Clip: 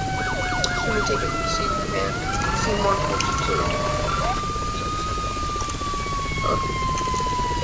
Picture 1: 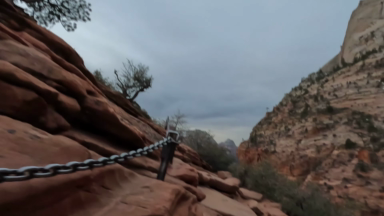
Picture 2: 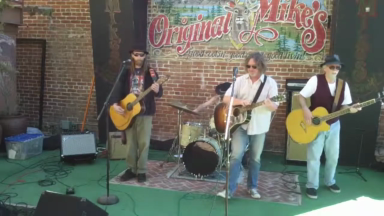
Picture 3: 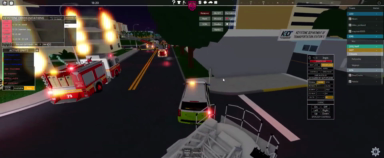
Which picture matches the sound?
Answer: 3